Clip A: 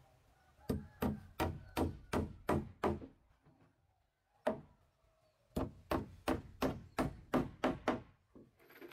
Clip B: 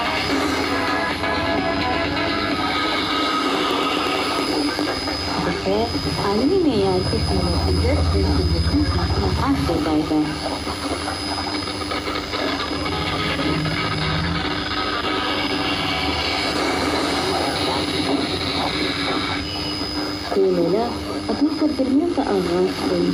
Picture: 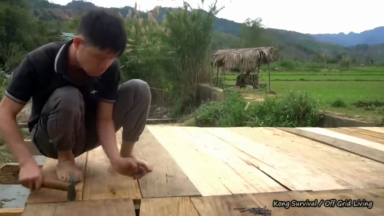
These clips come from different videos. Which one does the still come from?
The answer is A